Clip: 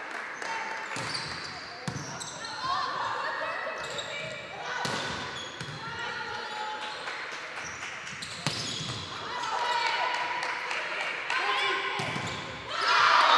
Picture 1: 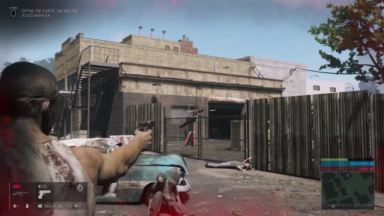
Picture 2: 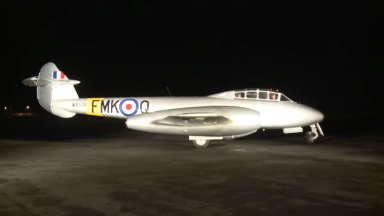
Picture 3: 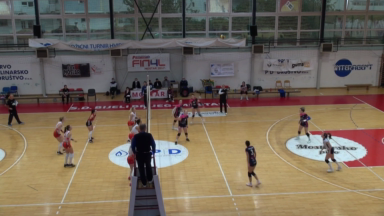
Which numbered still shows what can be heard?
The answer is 3